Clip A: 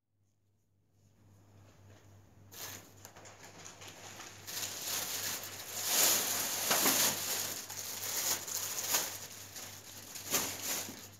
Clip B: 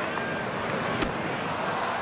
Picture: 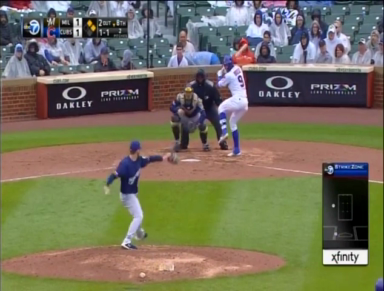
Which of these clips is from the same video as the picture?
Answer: B